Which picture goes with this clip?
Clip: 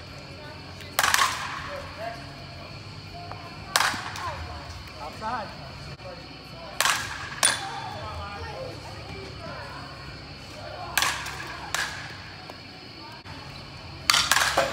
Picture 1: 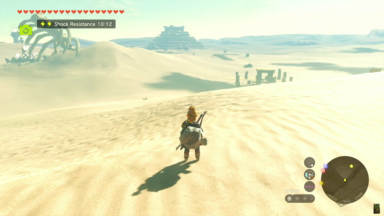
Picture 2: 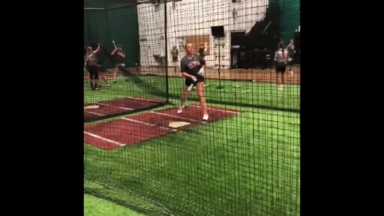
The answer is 2